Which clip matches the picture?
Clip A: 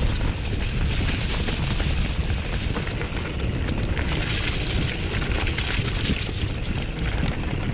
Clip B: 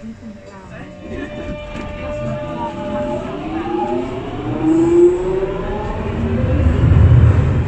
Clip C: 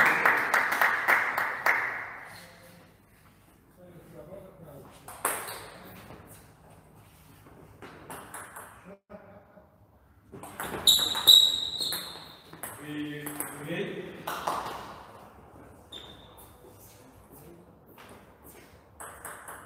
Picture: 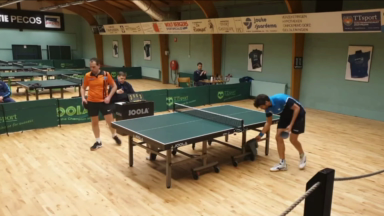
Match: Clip C